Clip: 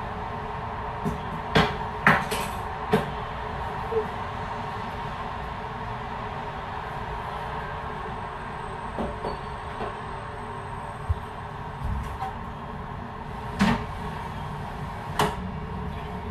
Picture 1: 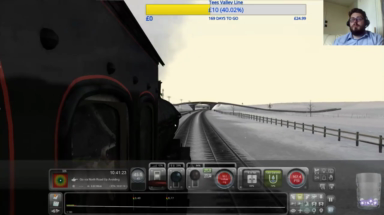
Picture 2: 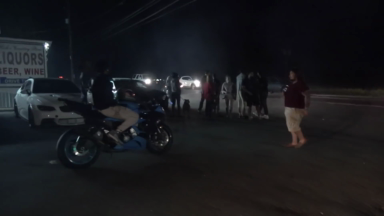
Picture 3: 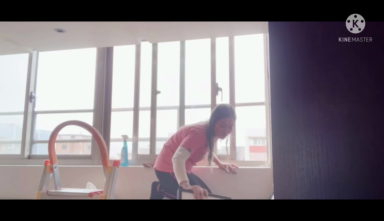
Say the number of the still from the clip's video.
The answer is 3